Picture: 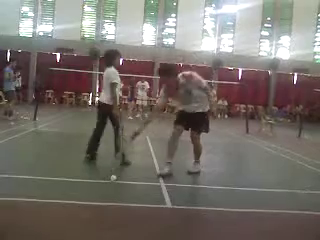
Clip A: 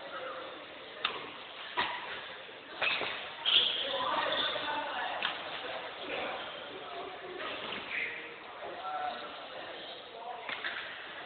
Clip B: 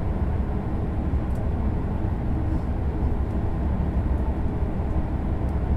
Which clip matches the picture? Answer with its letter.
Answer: A